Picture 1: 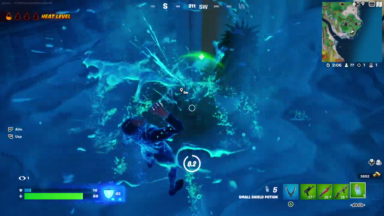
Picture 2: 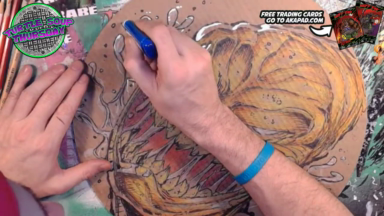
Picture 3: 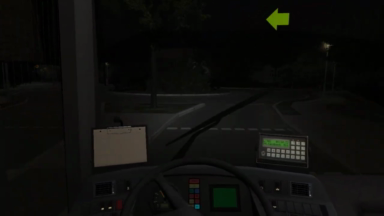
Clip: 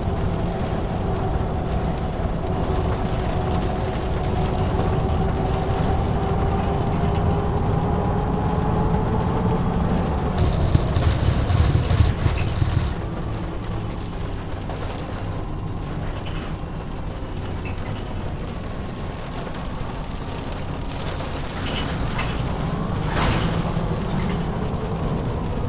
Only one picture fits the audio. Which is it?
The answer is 3